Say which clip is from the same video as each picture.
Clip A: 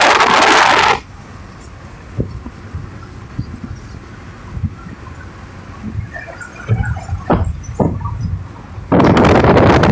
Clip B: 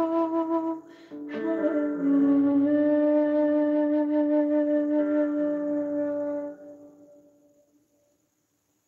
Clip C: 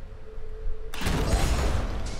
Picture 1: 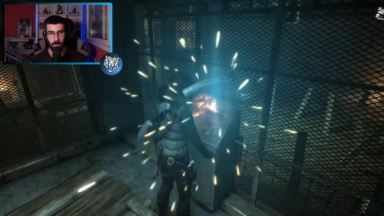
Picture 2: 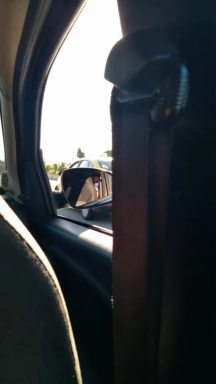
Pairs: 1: C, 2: A